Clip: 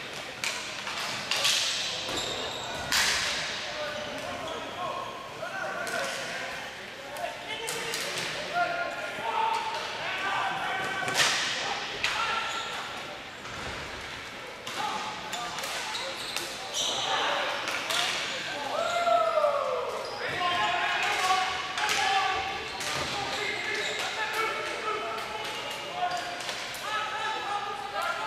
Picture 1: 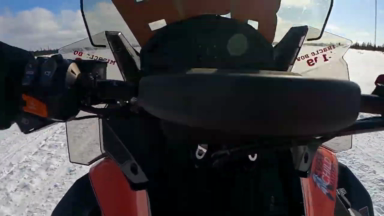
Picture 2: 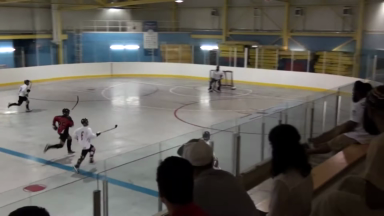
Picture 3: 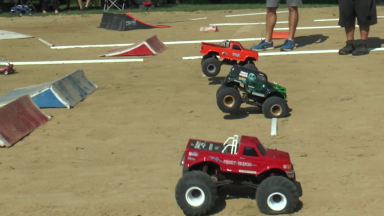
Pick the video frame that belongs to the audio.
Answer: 2